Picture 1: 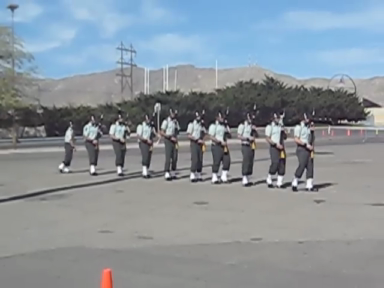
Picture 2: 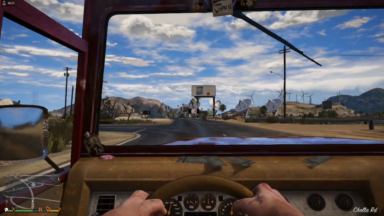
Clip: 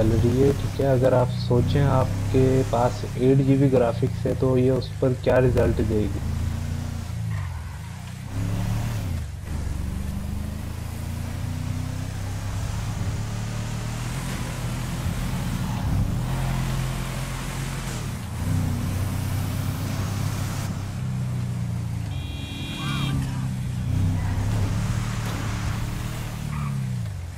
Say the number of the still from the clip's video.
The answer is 2